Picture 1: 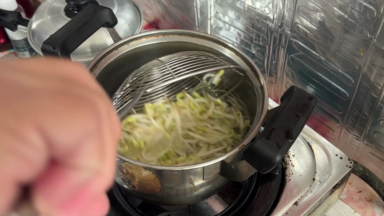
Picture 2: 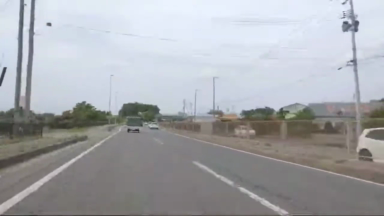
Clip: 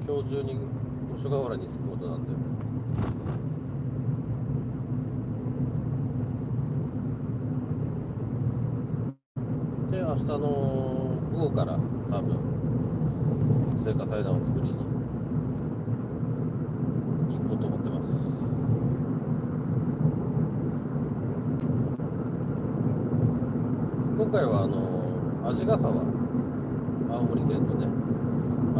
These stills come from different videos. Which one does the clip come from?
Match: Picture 2